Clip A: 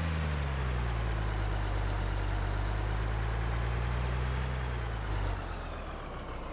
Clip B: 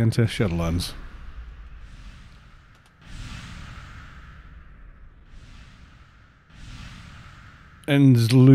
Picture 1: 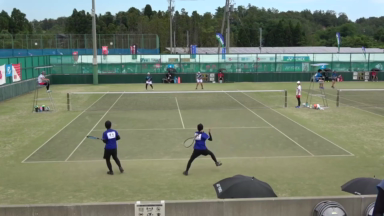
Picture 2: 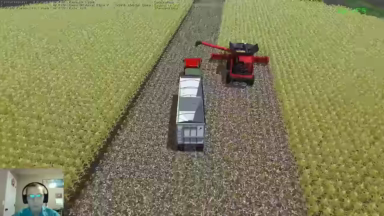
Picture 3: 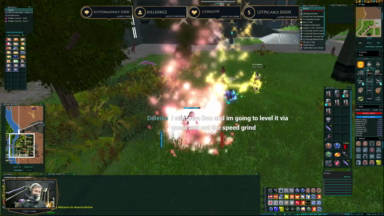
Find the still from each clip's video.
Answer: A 2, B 3